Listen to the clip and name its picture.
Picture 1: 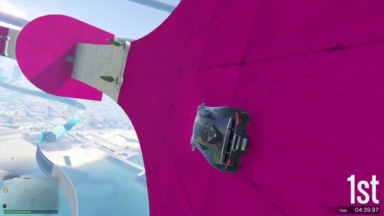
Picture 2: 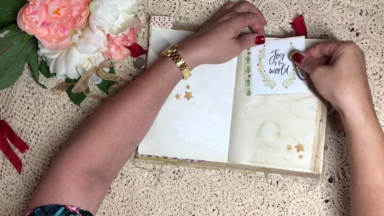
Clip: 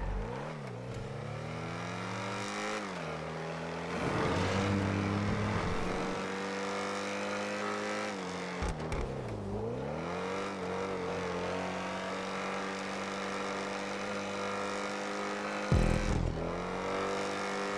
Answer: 1